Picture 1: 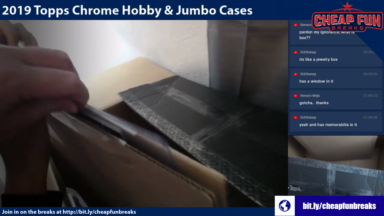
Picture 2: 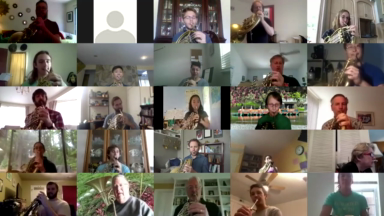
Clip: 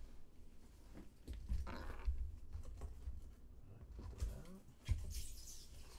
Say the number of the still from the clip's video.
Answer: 1